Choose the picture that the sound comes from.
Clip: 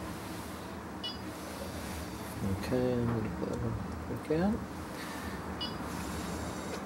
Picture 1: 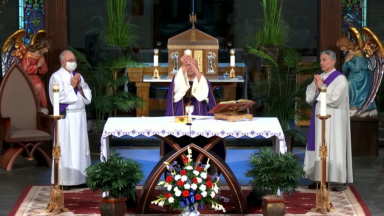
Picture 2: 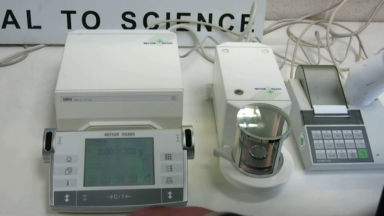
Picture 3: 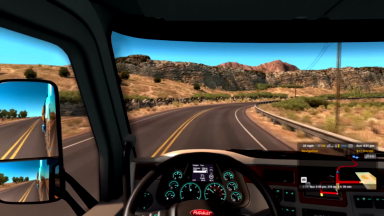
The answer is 2